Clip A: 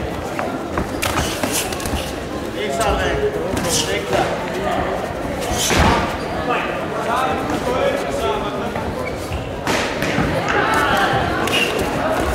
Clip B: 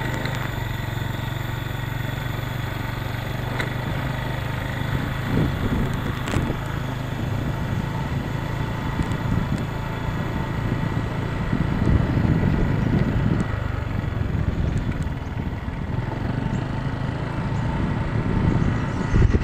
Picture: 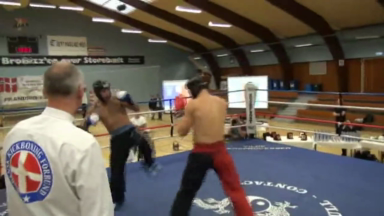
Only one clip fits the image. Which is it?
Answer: A